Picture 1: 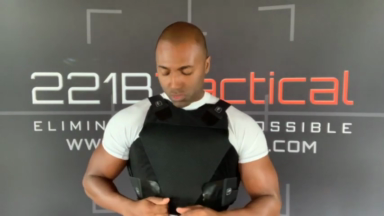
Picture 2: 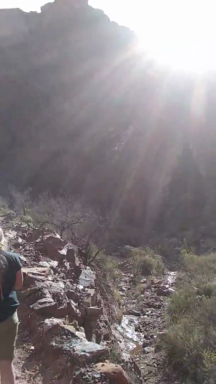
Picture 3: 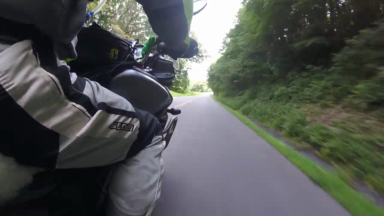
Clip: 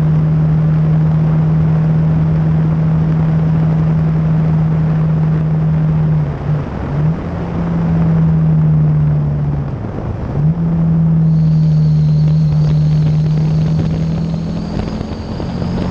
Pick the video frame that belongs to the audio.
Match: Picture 3